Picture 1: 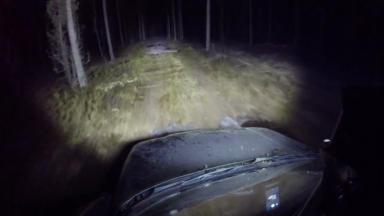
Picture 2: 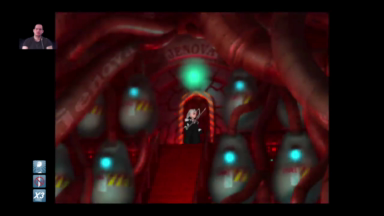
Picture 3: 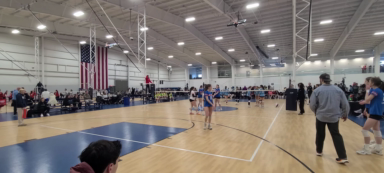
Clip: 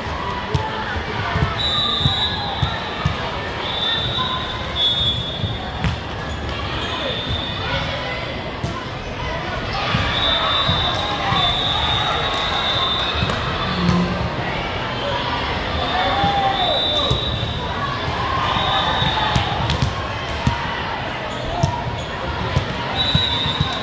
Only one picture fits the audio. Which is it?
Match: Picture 3